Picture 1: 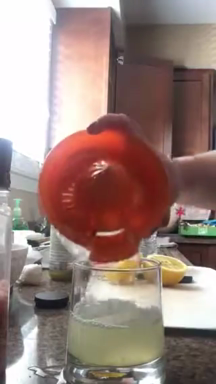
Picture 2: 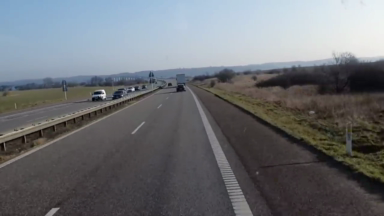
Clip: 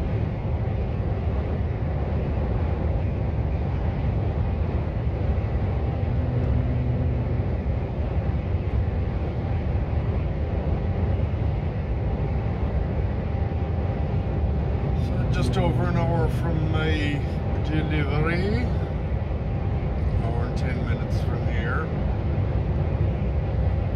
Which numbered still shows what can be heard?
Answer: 2